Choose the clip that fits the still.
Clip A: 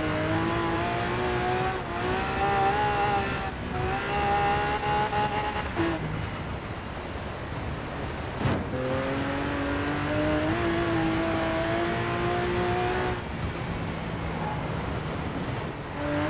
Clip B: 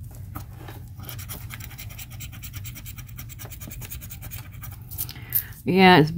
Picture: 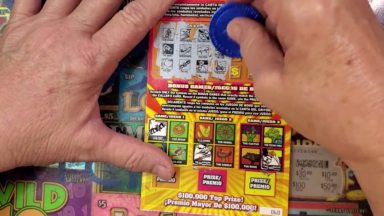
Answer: B